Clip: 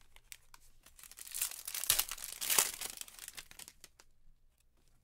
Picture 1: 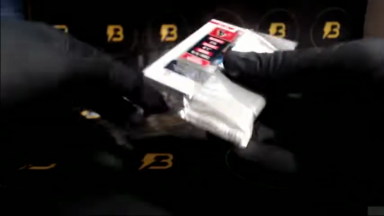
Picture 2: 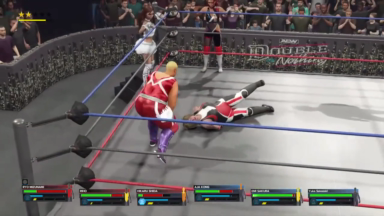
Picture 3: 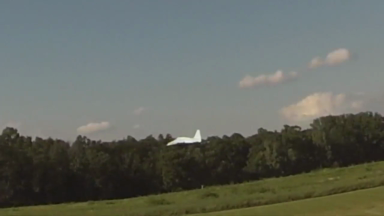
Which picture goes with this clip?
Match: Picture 1